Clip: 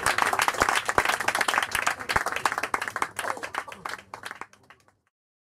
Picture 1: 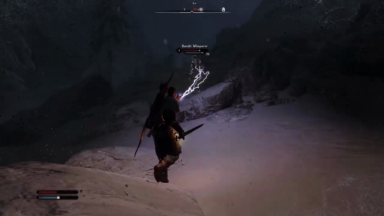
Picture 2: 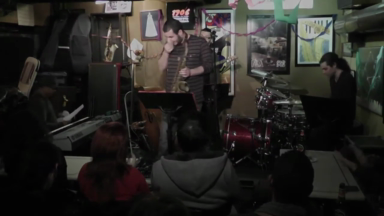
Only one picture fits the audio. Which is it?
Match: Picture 2